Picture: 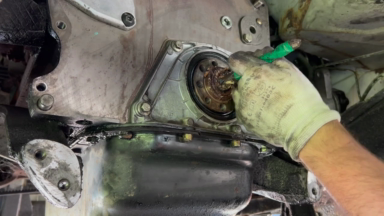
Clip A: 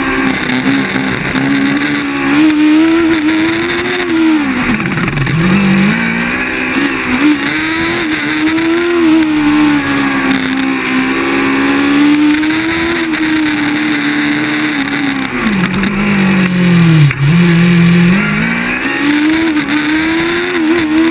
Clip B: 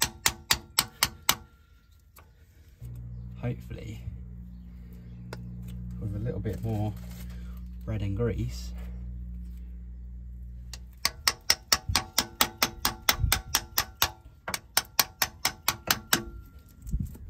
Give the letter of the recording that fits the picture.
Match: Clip B